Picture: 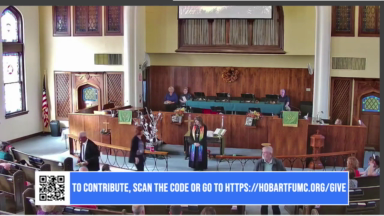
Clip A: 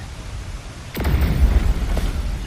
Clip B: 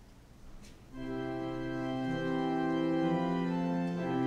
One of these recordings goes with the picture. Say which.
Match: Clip B